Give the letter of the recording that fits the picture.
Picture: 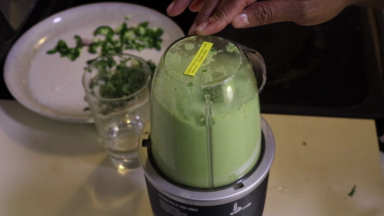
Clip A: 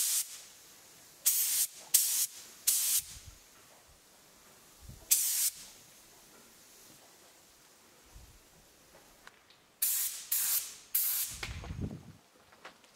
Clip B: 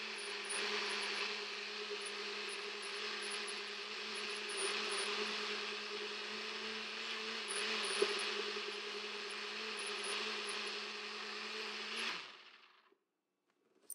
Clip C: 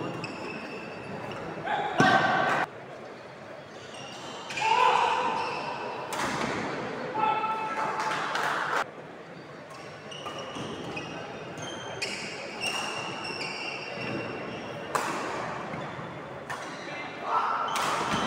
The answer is B